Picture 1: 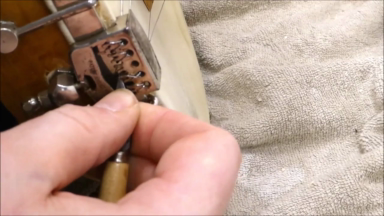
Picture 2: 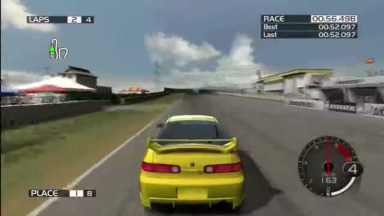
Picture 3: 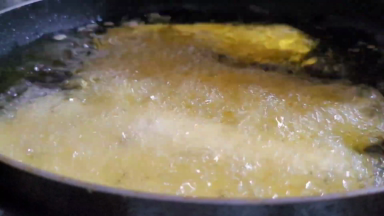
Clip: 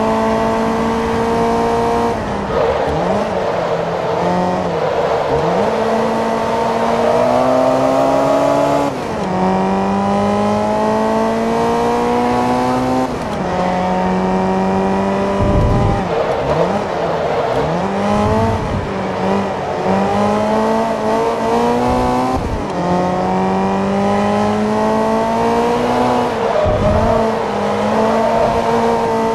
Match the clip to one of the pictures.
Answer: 2